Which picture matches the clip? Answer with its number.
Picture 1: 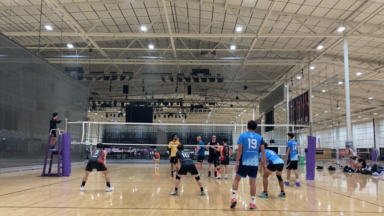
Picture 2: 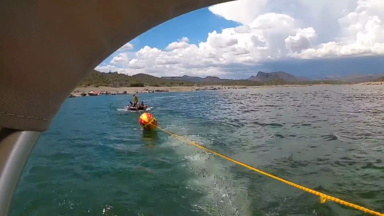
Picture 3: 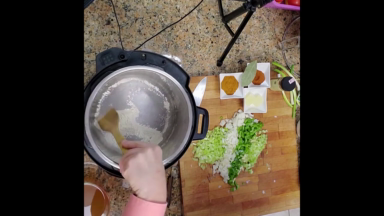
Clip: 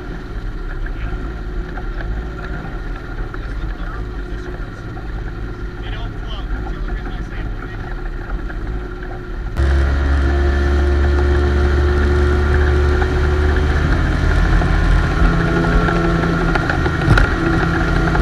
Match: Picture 2